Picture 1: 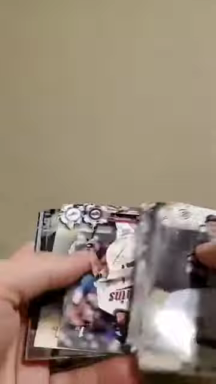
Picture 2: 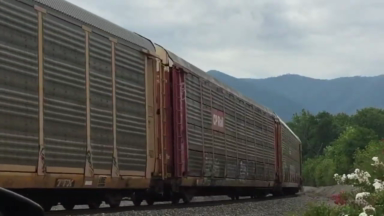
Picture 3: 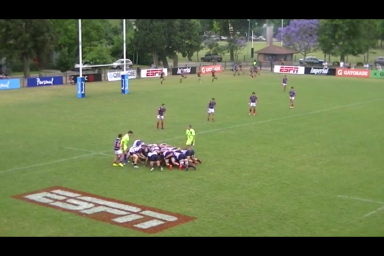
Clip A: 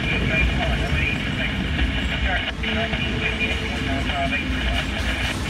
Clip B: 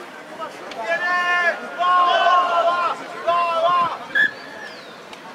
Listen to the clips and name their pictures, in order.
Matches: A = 2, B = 3